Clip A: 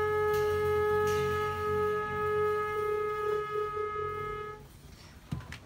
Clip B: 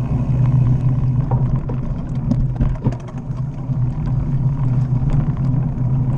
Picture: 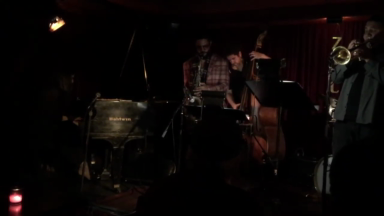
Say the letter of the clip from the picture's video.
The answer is A